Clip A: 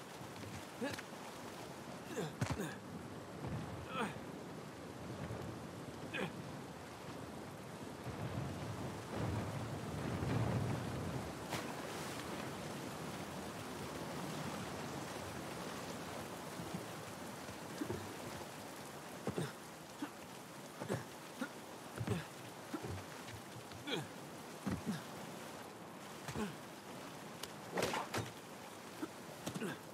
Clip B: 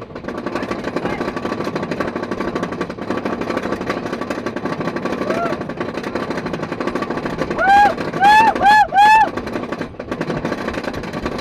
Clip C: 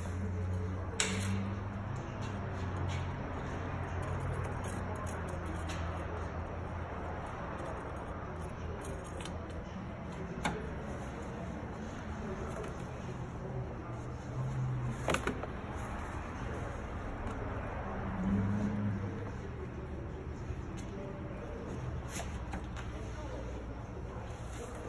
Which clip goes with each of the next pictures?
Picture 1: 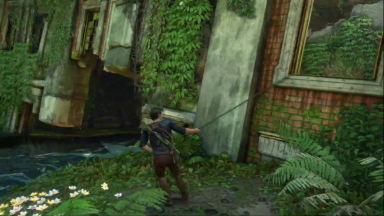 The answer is A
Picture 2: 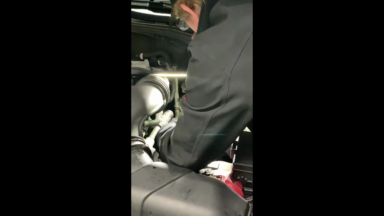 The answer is C